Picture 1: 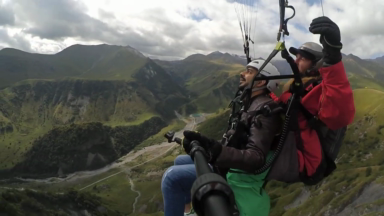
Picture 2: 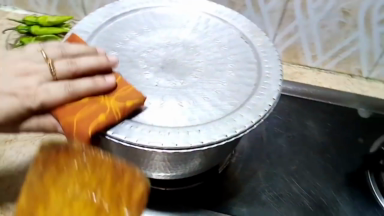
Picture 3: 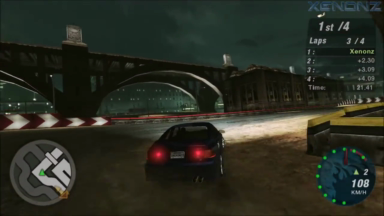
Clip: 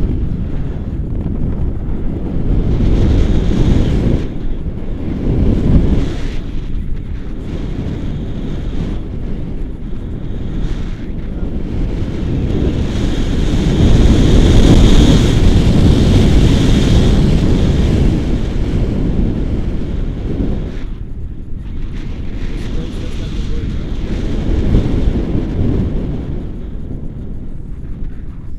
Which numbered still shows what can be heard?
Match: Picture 1